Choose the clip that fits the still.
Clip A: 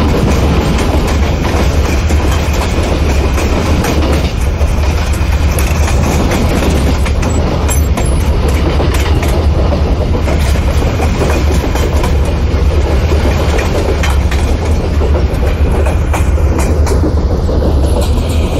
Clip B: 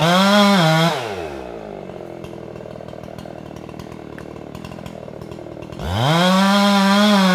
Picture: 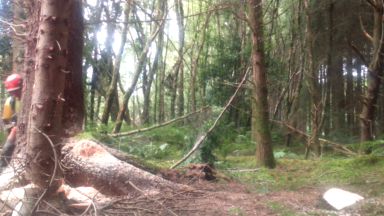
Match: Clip B